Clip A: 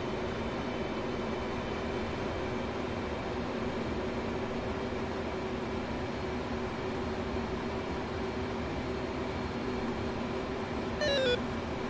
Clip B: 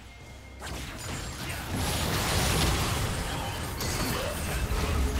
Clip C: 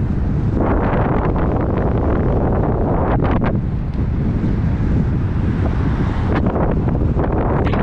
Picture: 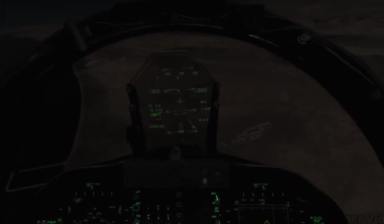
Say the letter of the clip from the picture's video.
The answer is A